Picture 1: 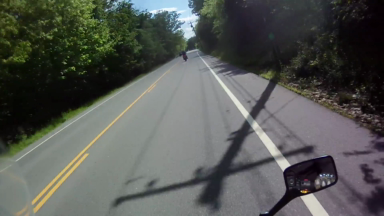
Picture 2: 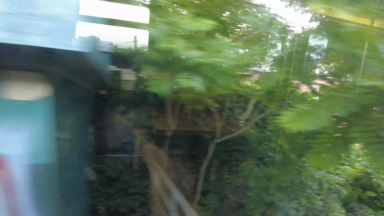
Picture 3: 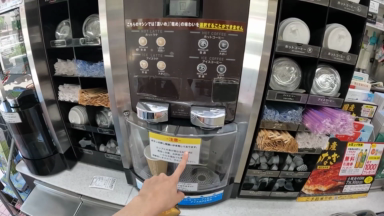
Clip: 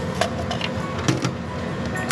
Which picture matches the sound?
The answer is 3